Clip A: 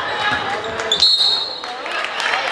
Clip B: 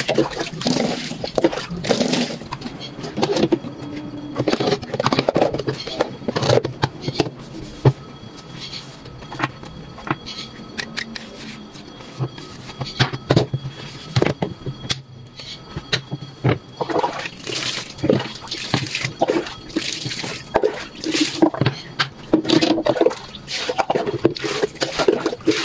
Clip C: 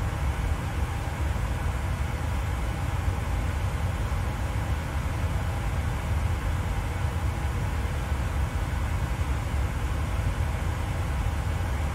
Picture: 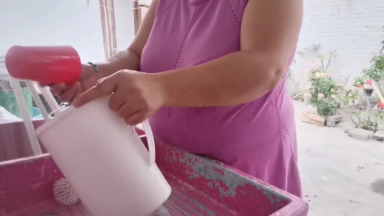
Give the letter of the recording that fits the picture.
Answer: B